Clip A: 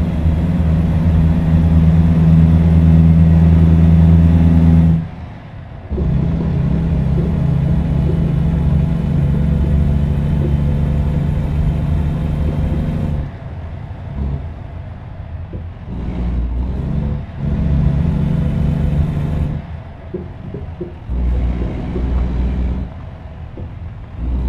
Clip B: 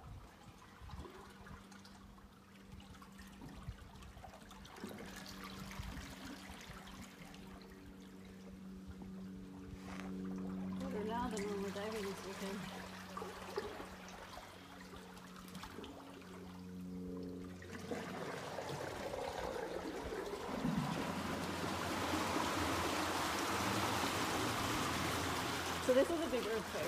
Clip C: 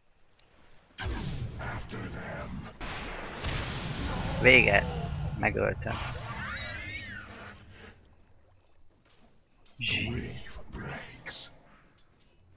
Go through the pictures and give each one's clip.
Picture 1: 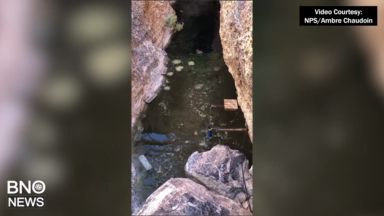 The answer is B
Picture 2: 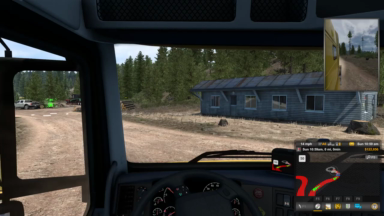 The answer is A